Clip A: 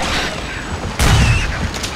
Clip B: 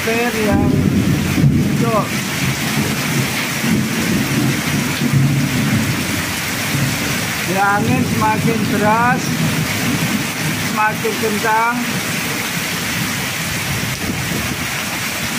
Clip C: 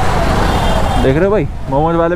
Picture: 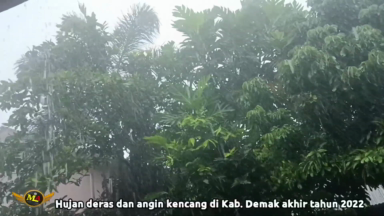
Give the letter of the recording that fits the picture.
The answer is B